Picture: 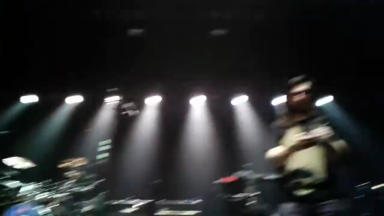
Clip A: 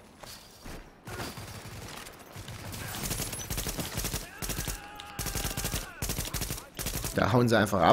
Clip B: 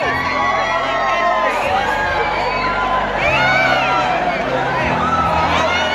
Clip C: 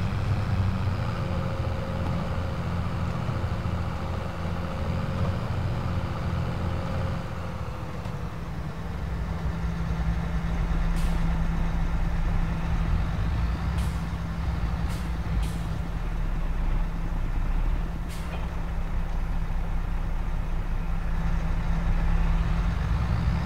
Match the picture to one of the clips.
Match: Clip B